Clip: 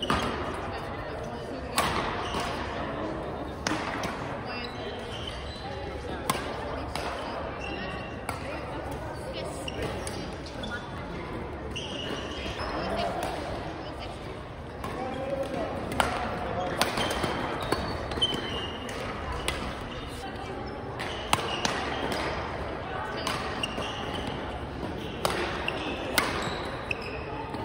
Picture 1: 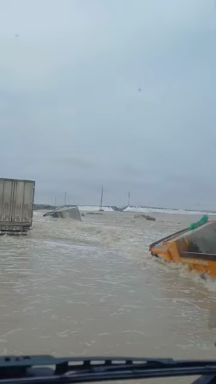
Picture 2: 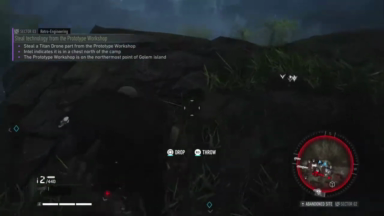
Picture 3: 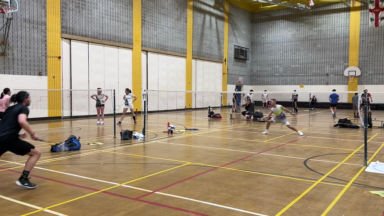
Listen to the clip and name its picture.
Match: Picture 3